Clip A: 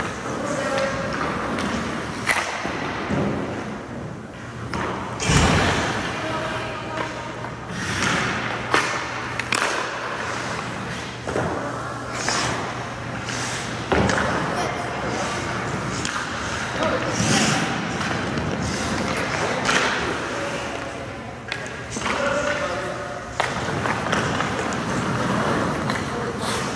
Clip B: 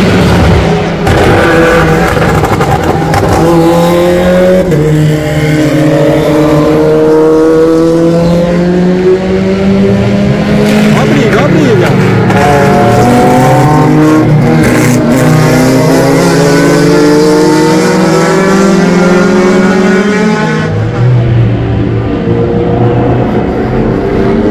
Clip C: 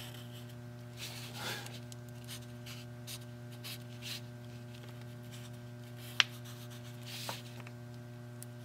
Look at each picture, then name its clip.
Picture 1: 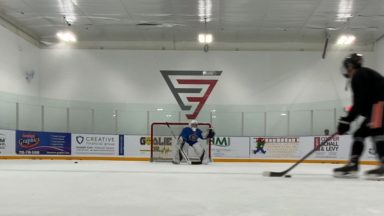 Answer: A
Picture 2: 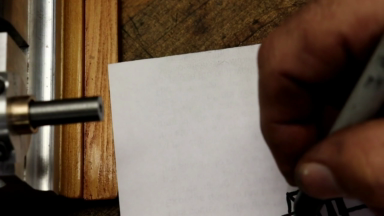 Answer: C